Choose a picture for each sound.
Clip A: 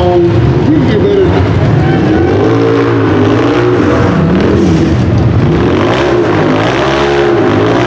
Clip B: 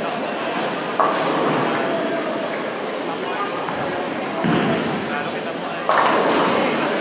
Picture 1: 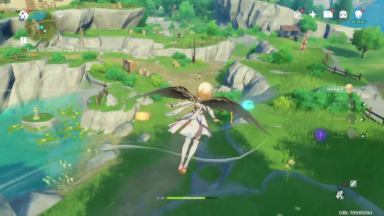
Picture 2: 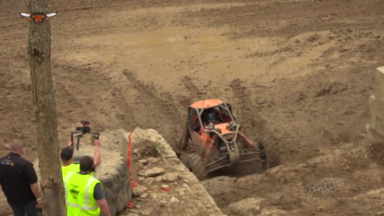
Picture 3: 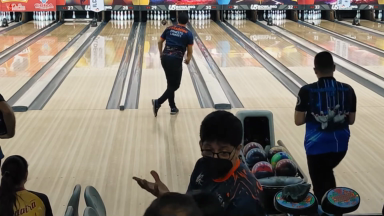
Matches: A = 2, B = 3